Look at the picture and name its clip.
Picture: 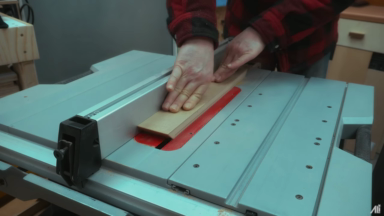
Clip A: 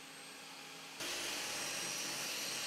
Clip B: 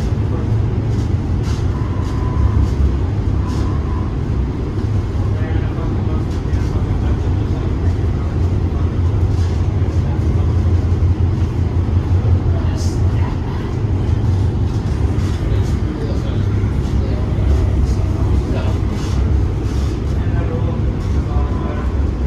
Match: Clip A